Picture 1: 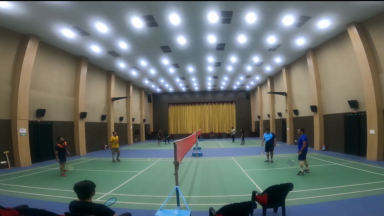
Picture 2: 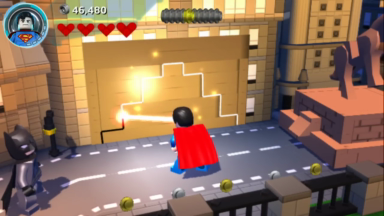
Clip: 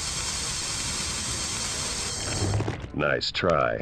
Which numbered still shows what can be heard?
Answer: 2